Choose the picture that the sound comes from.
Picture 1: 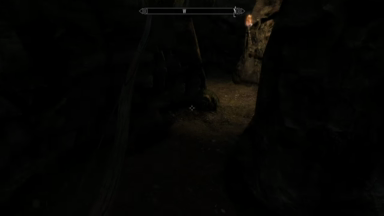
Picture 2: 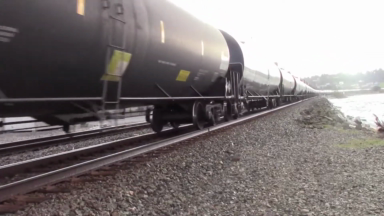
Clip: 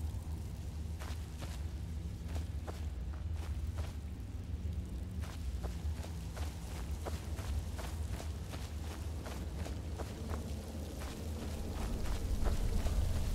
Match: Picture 1